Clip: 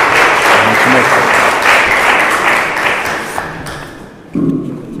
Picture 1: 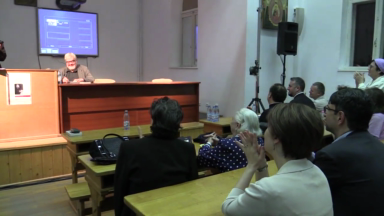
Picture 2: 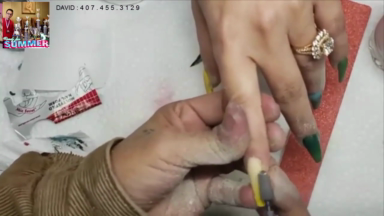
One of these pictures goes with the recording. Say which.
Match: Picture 1